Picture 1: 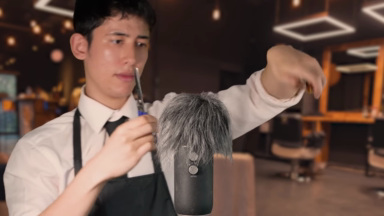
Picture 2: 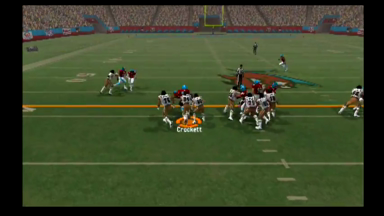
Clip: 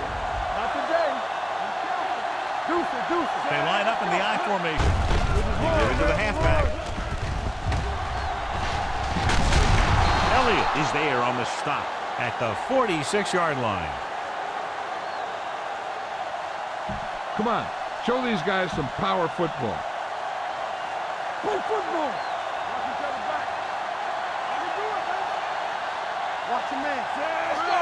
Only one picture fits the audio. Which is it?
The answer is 2